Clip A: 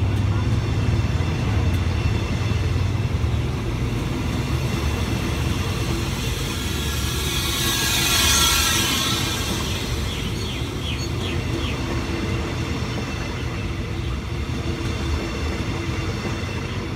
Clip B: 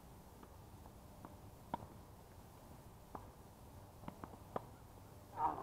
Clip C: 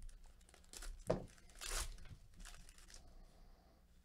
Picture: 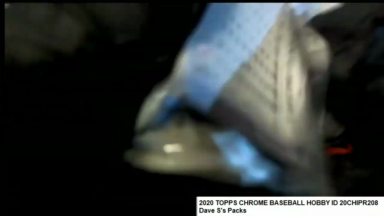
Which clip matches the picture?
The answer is C